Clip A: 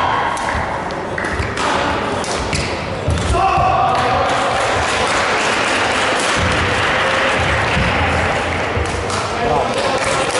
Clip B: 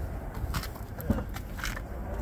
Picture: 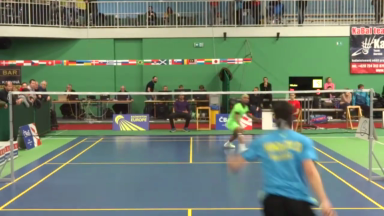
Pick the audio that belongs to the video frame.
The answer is A